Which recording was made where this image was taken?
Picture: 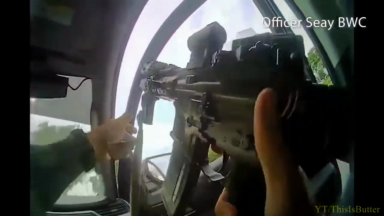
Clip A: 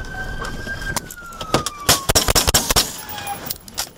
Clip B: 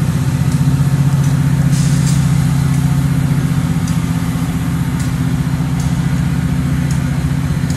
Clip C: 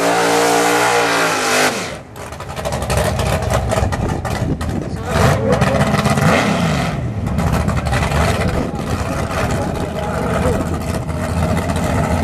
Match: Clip A